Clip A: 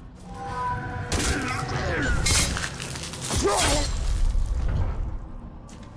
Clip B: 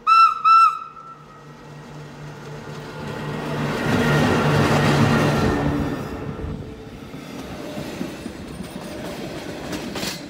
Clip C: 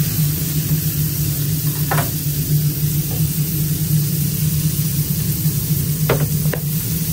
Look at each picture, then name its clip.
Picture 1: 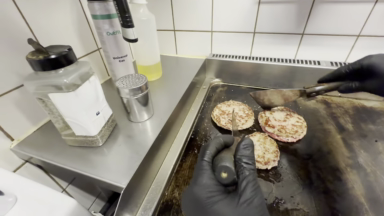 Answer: C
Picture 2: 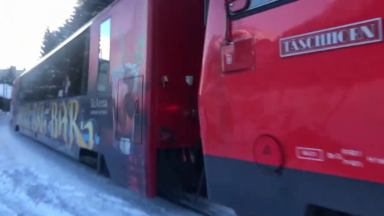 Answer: B